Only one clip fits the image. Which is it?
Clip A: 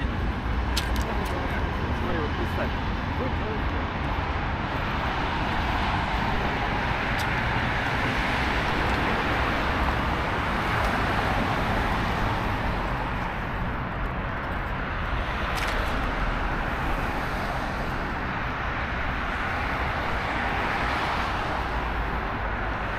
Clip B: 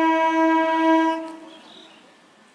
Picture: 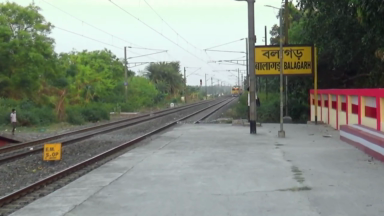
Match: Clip B